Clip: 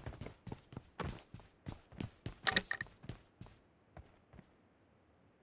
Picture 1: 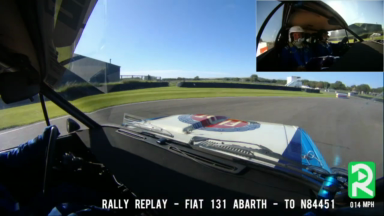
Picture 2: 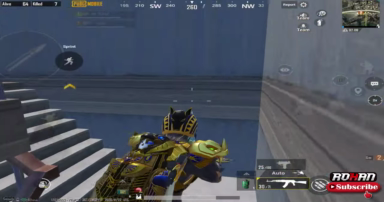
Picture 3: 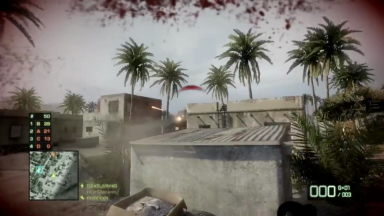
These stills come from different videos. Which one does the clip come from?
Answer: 2